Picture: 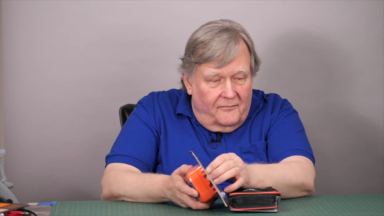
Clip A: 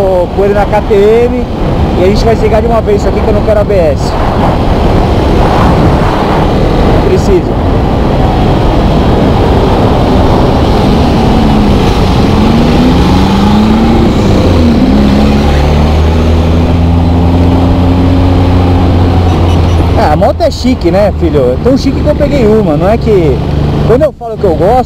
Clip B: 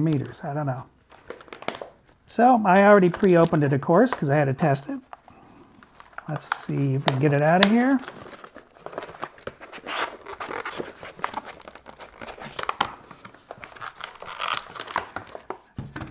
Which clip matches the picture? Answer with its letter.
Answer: B